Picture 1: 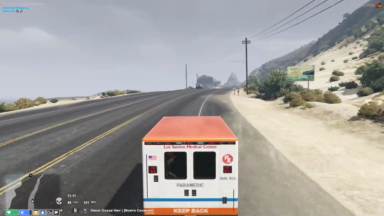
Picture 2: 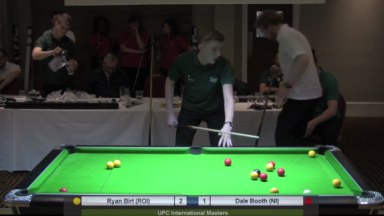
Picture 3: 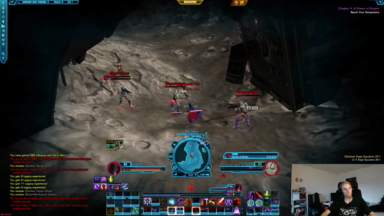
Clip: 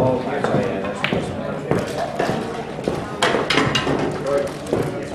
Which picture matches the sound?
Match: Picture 2